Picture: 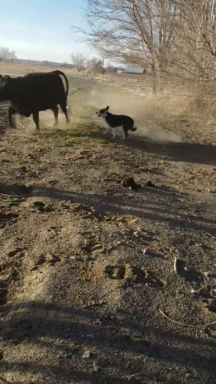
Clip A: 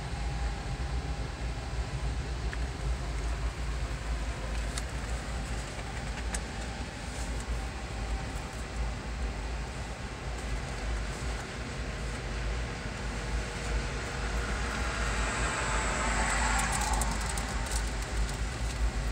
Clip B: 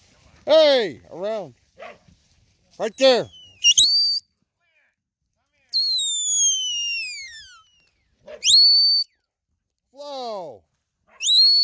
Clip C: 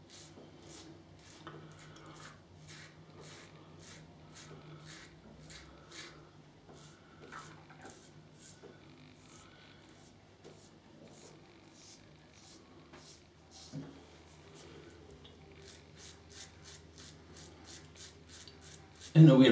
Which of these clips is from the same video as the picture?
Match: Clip B